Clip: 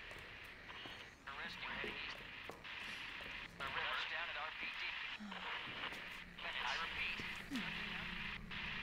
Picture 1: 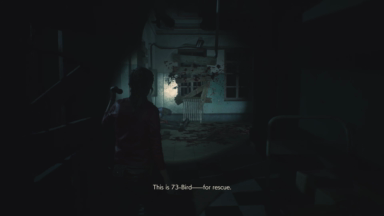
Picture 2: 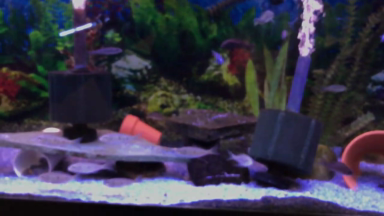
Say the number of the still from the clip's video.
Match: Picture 1